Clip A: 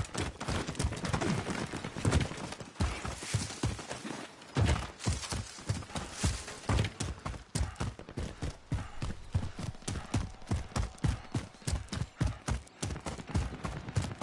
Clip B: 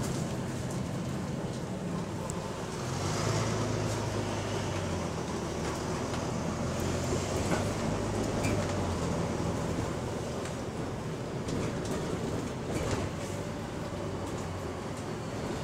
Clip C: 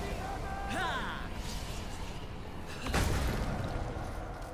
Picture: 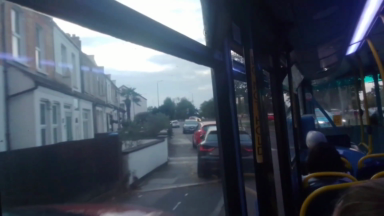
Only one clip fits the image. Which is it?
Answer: B